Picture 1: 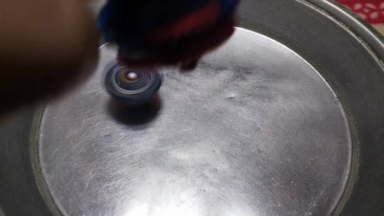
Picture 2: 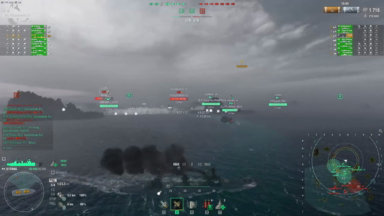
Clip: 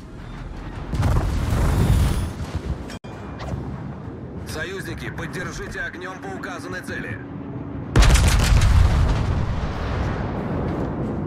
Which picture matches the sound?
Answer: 2